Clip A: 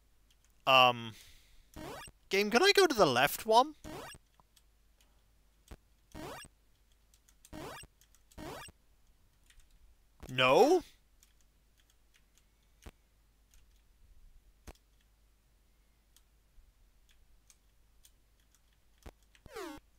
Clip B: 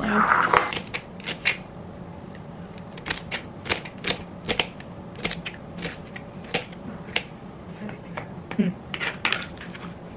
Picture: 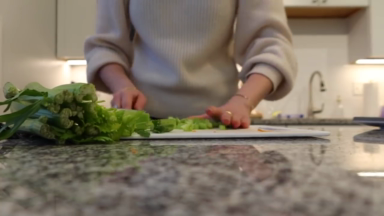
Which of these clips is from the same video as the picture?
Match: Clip B